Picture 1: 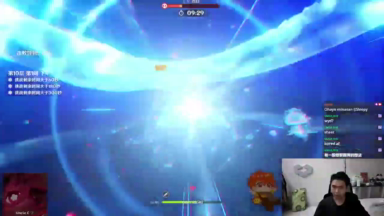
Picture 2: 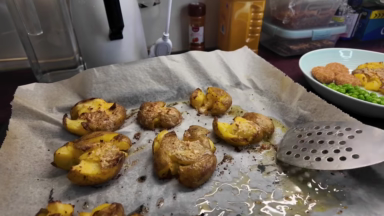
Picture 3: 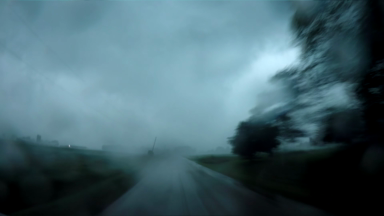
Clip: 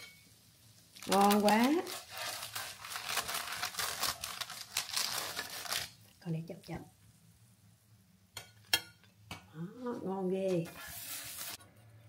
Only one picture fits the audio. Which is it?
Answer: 2